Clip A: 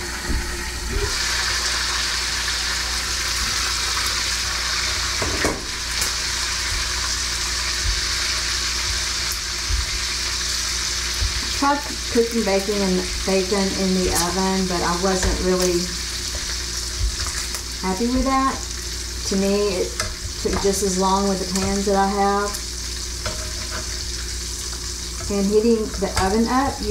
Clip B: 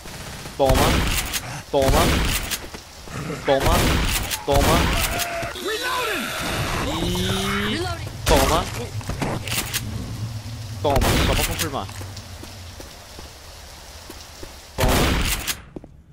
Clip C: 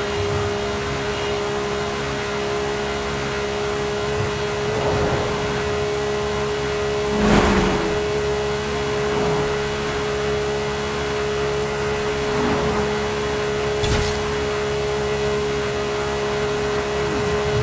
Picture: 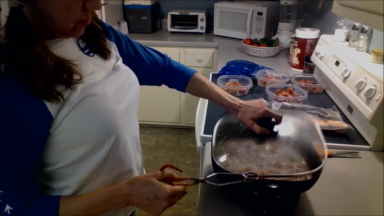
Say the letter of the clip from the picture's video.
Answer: A